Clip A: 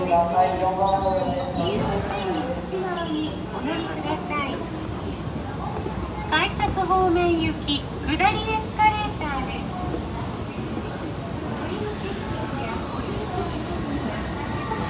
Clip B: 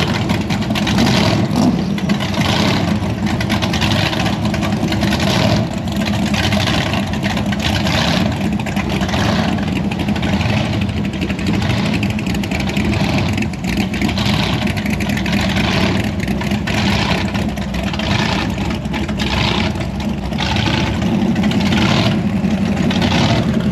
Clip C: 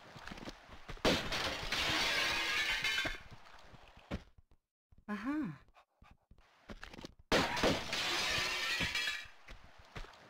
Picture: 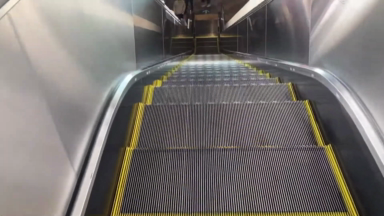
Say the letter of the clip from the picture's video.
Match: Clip A